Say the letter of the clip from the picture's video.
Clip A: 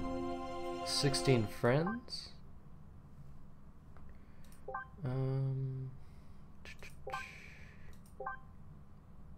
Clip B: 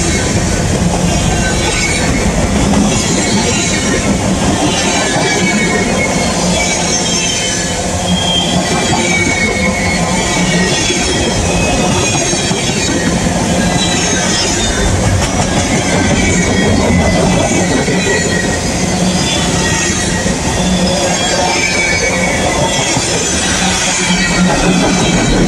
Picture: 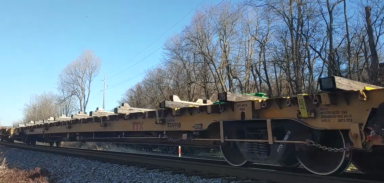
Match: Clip B